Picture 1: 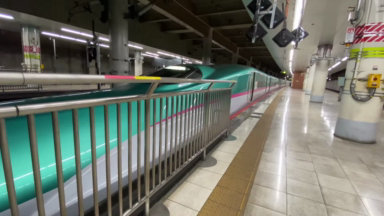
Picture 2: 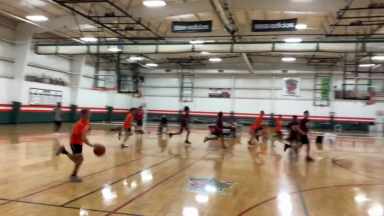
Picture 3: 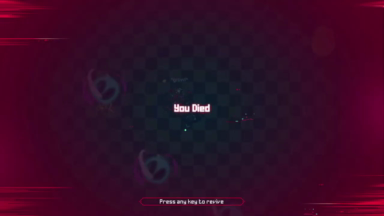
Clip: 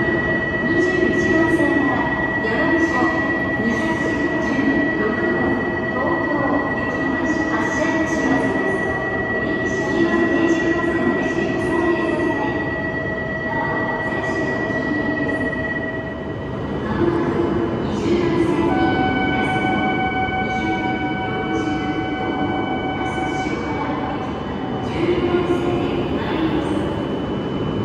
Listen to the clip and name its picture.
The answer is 1